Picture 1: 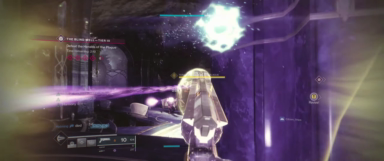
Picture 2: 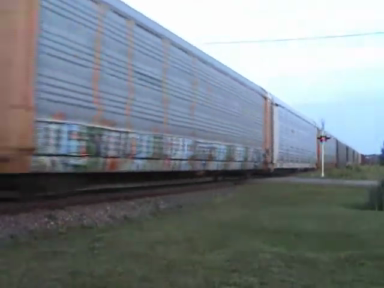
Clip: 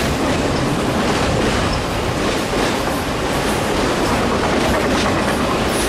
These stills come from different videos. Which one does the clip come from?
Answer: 2